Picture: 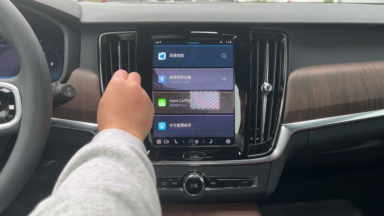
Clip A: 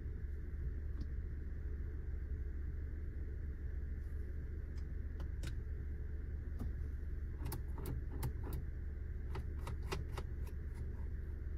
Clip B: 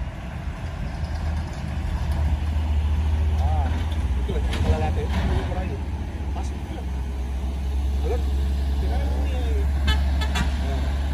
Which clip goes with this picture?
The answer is A